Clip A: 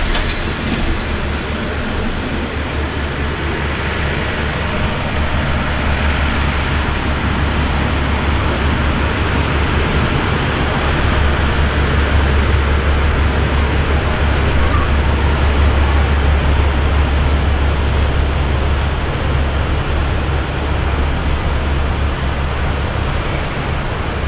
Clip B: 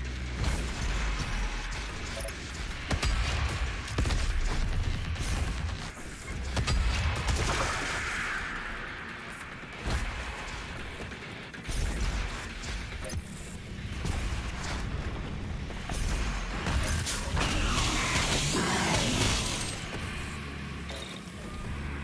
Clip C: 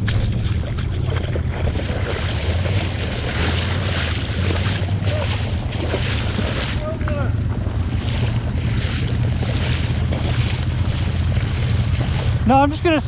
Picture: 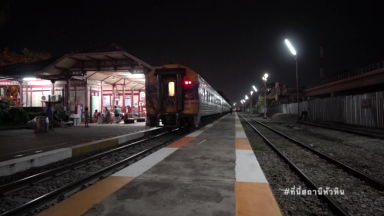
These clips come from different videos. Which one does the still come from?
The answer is A